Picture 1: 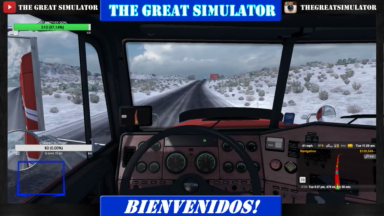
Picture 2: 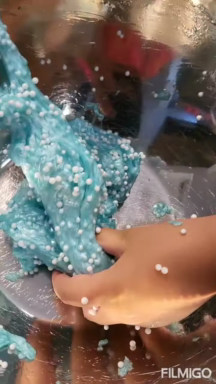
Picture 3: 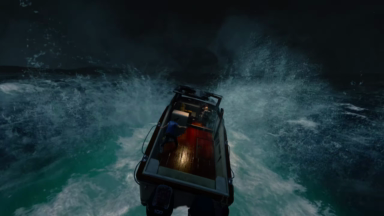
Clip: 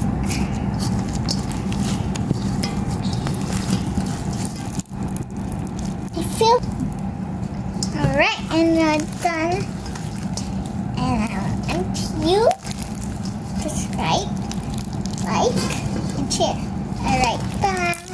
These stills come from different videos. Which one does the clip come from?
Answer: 2